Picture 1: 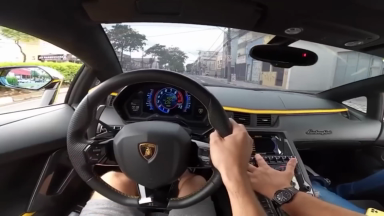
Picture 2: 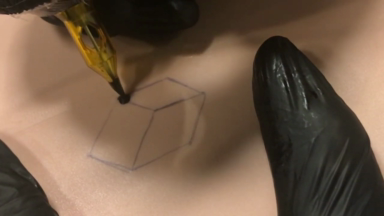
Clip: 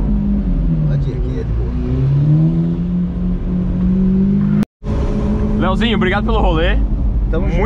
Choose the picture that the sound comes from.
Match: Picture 1